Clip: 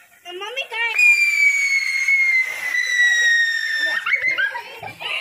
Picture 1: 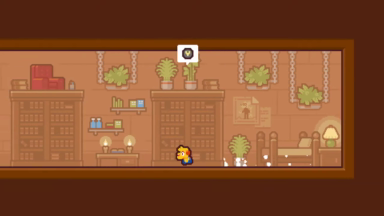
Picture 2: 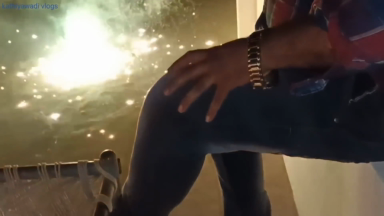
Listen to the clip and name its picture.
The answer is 2